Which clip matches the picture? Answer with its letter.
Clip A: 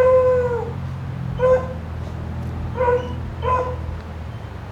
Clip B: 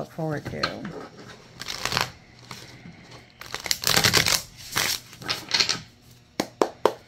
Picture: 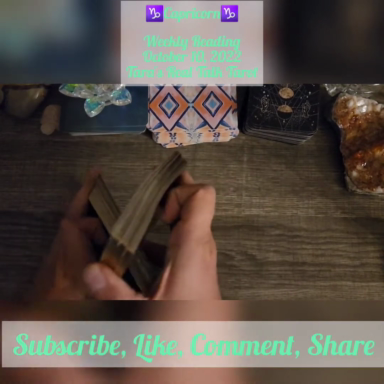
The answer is B